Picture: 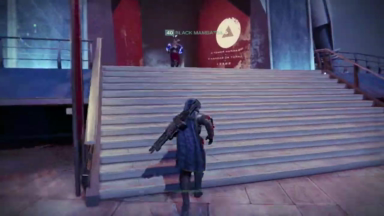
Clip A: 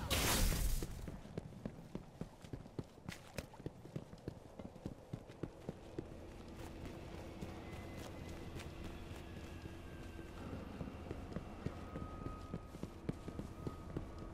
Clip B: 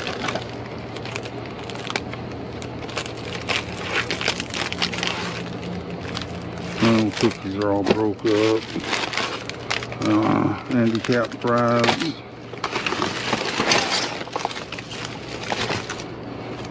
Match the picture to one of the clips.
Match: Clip A